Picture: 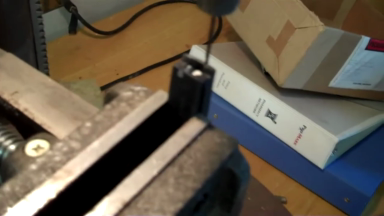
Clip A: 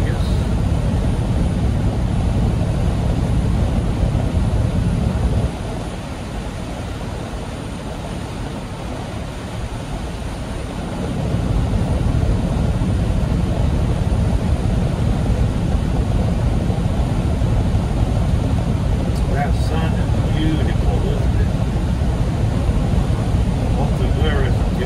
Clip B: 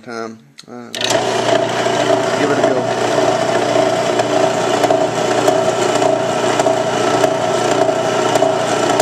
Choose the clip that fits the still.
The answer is B